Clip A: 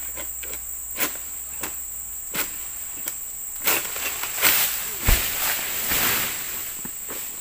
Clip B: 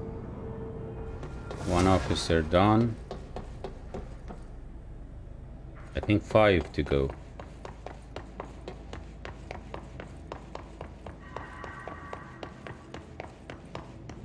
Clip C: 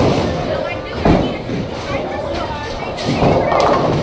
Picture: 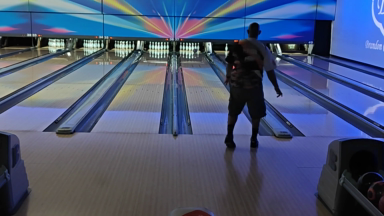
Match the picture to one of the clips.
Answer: C